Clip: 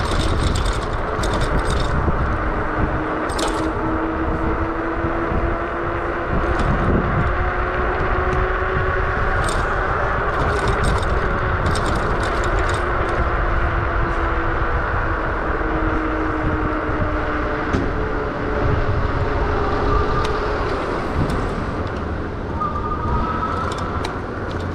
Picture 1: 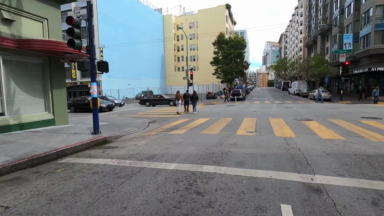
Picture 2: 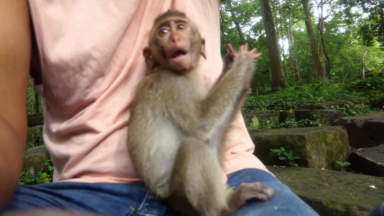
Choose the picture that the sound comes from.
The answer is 1